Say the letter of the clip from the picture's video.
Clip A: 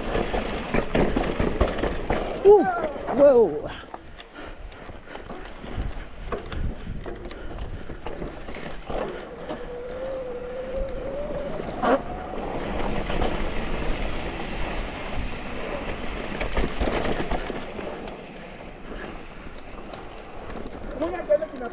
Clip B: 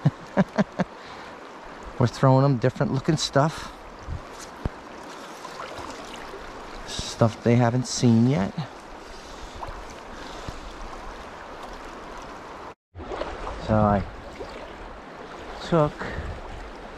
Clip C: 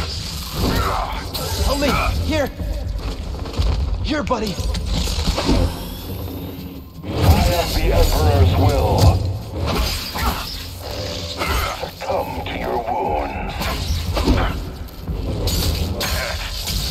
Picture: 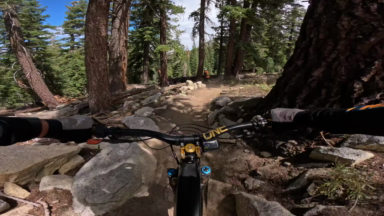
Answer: A